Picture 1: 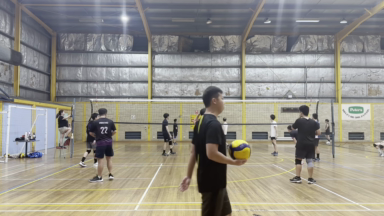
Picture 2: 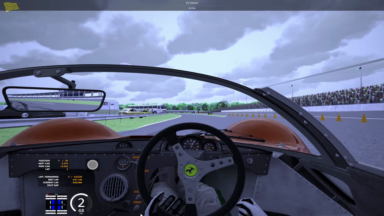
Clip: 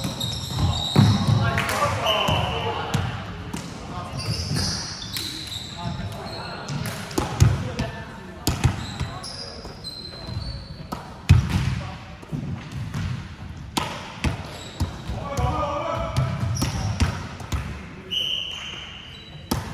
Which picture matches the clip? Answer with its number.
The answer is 1